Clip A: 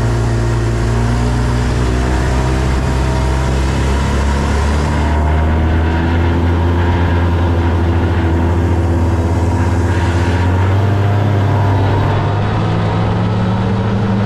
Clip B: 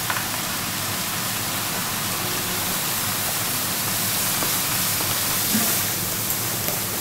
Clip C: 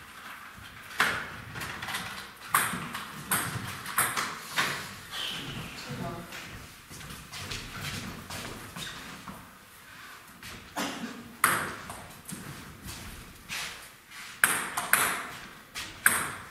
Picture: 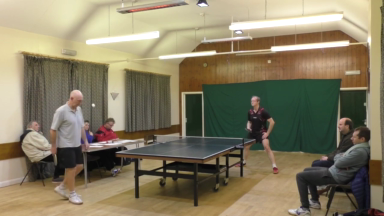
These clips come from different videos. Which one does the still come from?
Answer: C